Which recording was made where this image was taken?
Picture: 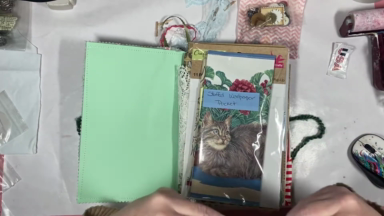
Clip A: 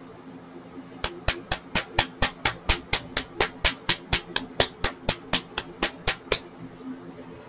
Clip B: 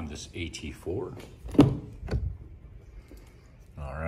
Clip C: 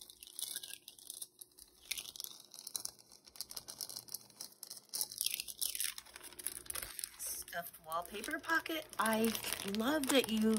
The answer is C